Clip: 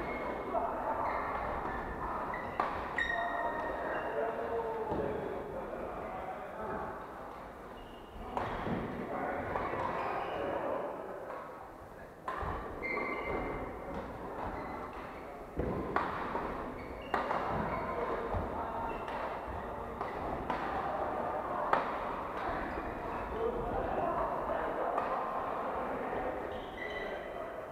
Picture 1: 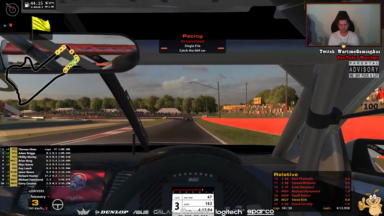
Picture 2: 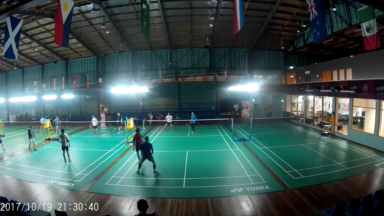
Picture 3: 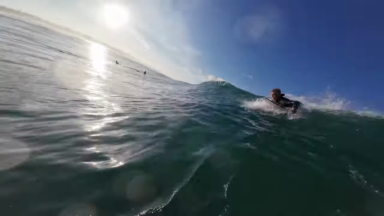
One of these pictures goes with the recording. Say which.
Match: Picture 2